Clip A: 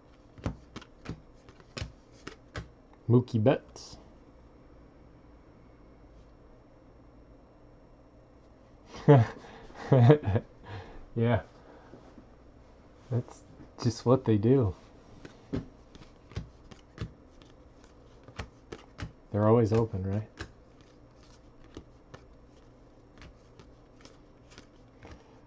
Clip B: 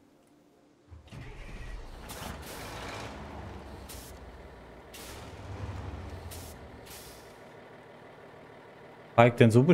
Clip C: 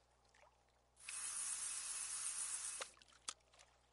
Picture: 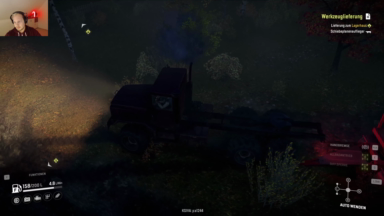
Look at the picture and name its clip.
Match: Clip B